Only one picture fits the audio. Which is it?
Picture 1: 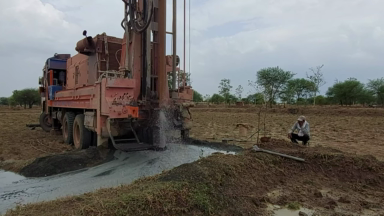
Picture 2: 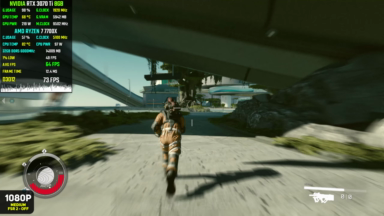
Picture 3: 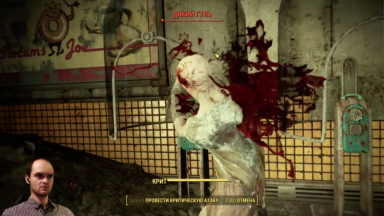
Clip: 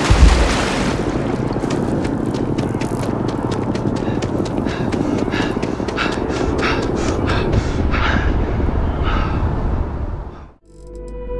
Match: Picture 2